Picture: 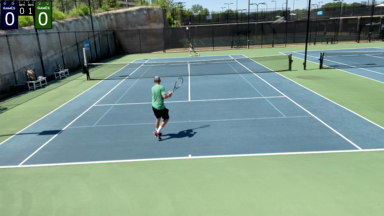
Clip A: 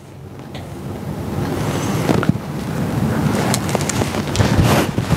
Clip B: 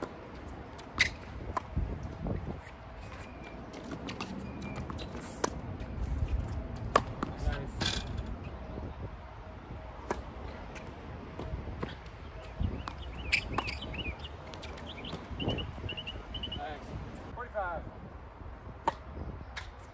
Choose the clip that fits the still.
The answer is B